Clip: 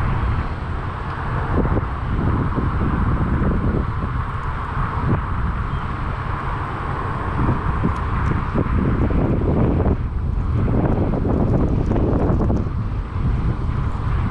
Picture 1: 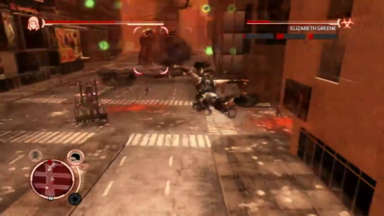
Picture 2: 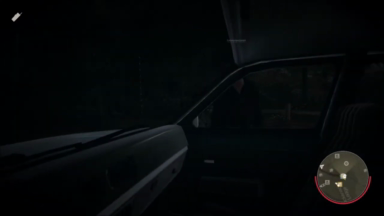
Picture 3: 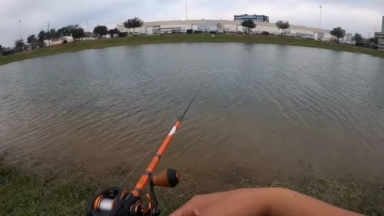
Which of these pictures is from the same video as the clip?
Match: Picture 3